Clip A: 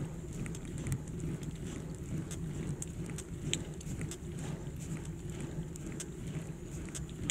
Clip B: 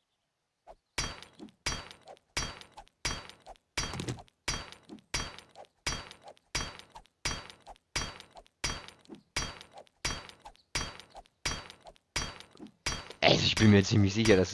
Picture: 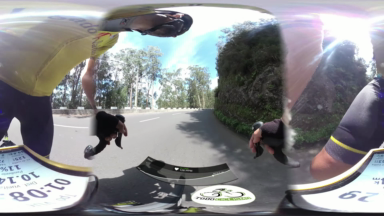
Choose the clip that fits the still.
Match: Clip A